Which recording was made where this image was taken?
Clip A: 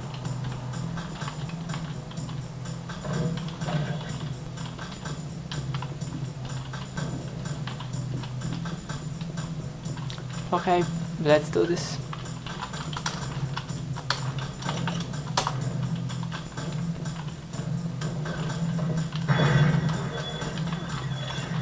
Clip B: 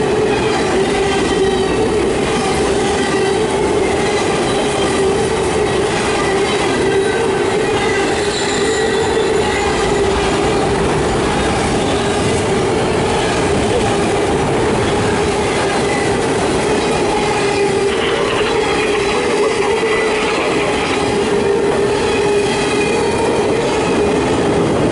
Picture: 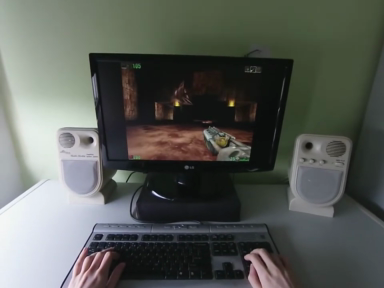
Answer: A